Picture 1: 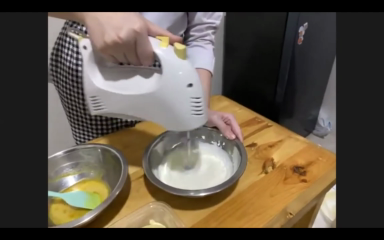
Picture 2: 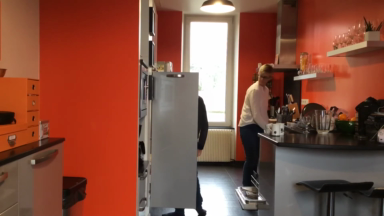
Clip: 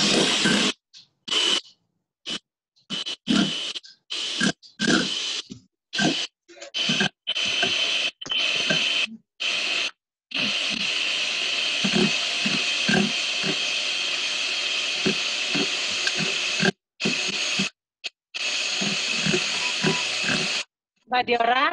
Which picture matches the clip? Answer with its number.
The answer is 1